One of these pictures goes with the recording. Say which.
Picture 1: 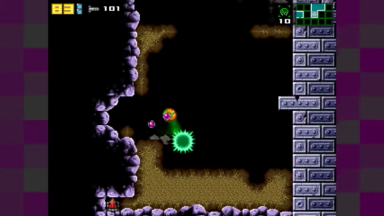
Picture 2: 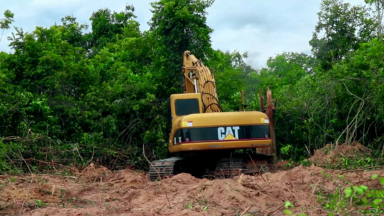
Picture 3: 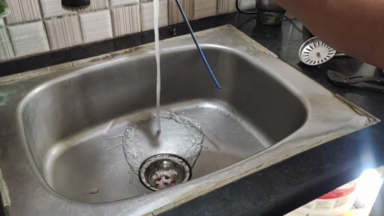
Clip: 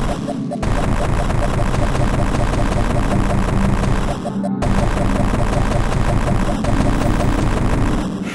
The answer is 1